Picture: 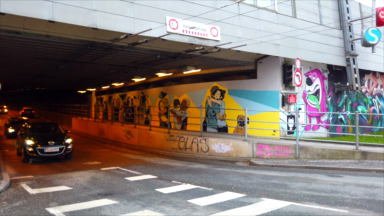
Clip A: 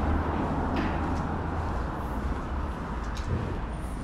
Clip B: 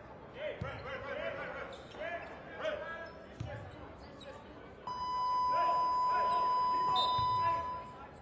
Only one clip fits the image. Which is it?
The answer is A